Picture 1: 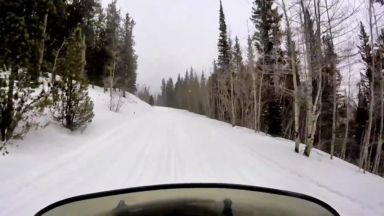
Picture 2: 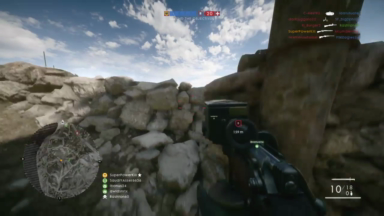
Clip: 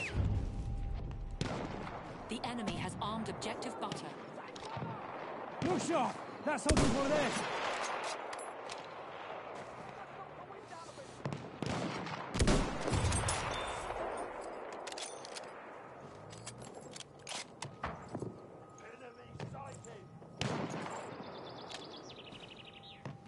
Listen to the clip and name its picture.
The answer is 2